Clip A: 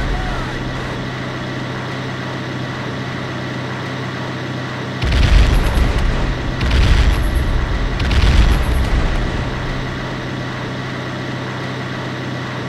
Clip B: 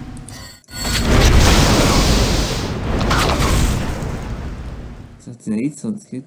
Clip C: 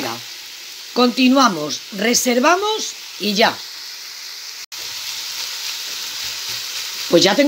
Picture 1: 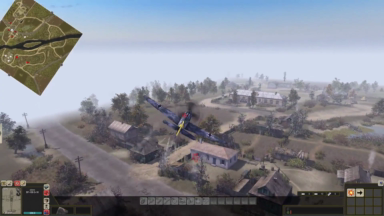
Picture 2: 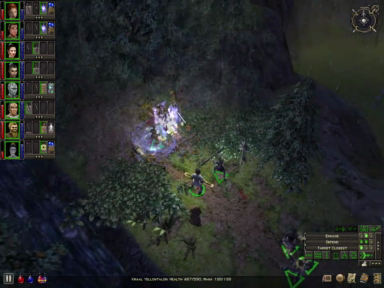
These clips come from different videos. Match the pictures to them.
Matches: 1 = A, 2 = B